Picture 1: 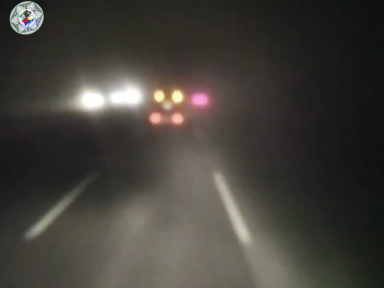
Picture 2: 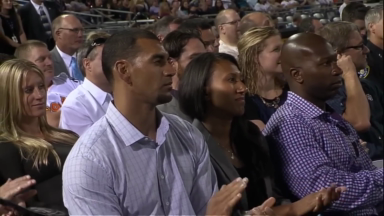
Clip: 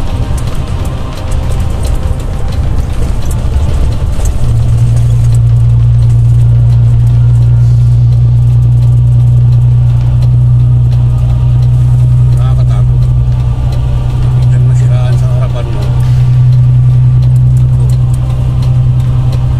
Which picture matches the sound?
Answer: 1